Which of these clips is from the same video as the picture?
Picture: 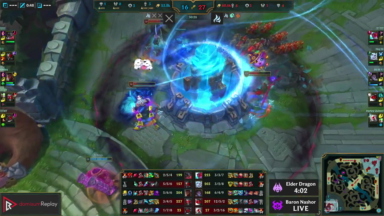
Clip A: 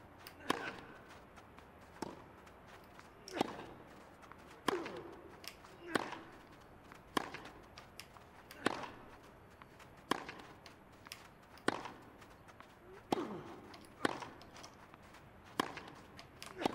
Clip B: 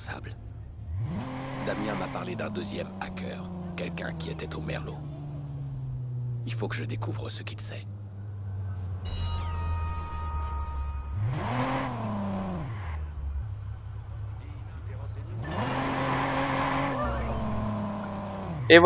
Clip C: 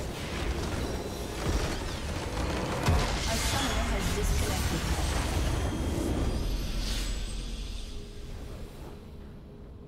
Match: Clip C